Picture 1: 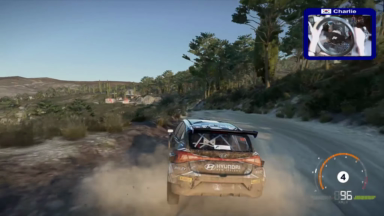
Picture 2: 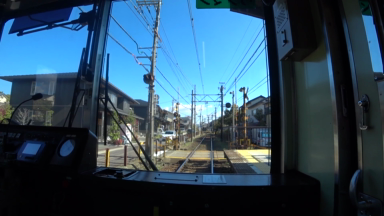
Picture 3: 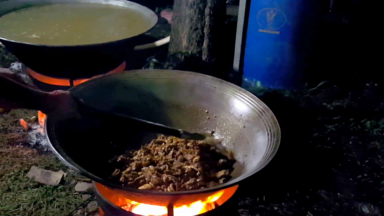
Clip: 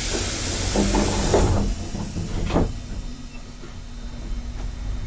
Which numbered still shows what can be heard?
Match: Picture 2